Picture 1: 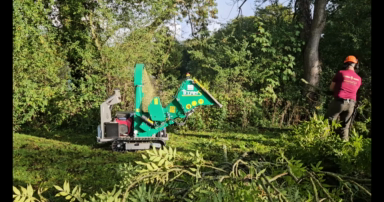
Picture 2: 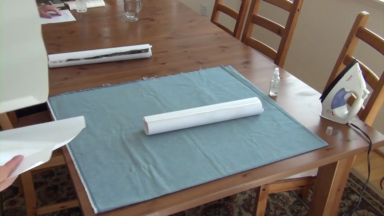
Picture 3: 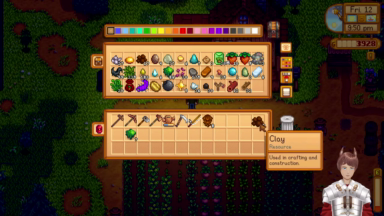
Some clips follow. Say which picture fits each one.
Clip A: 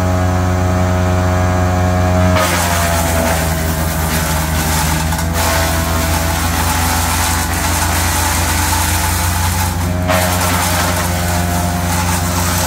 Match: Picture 1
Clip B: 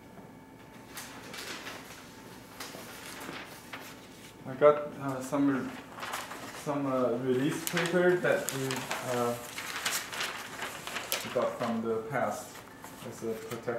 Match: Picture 2